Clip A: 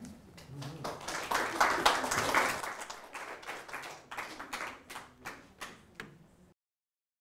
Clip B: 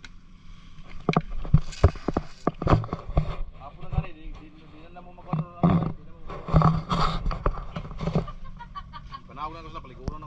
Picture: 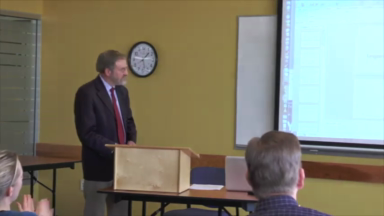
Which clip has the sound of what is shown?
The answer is A